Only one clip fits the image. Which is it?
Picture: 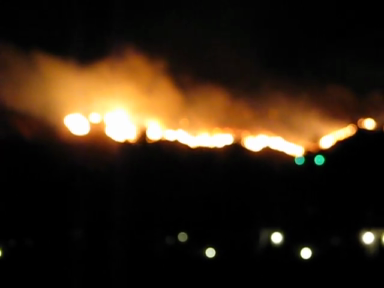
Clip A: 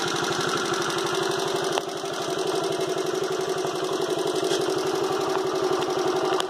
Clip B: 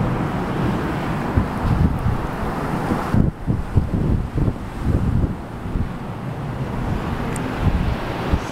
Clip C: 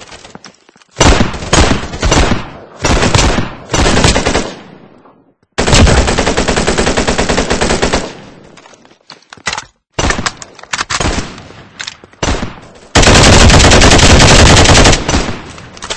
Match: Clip B